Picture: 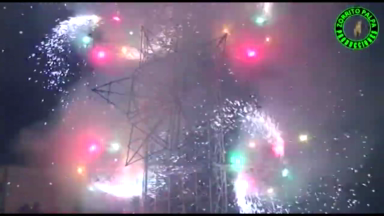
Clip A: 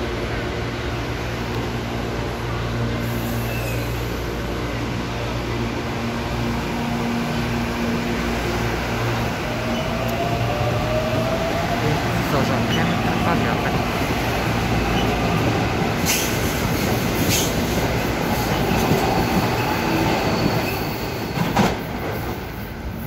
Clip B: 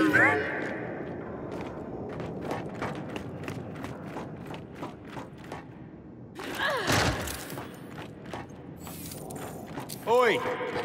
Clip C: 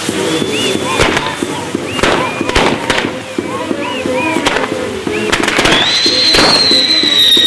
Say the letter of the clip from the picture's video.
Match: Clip C